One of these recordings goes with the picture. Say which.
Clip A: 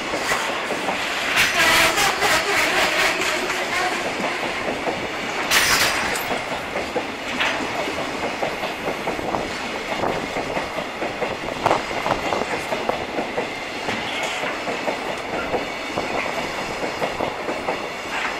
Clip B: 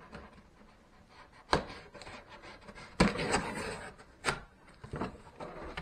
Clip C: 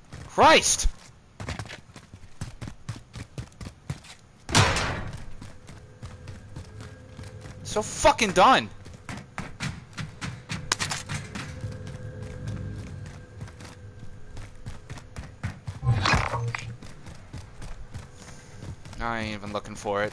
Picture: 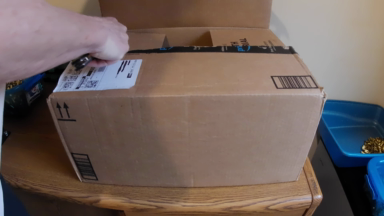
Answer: B